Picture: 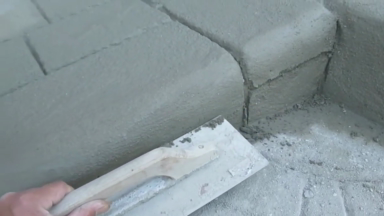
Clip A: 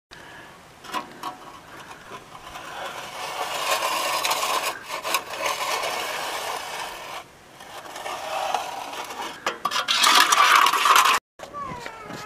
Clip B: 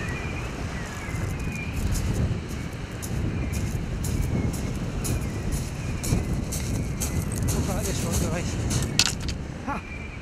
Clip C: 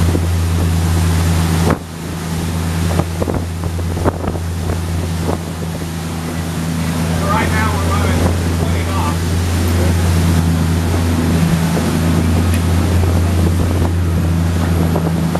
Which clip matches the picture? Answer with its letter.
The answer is A